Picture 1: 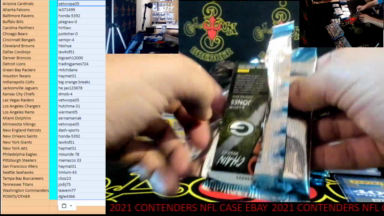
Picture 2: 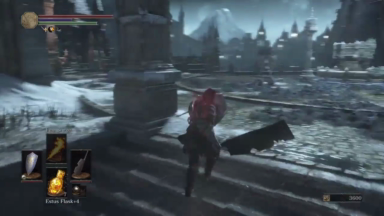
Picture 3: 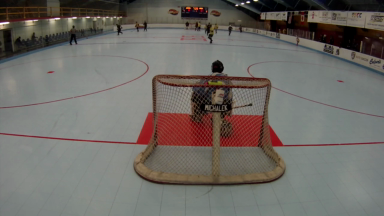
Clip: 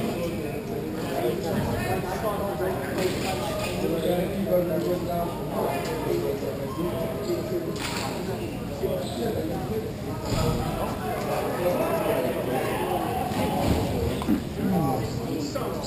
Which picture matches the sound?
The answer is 3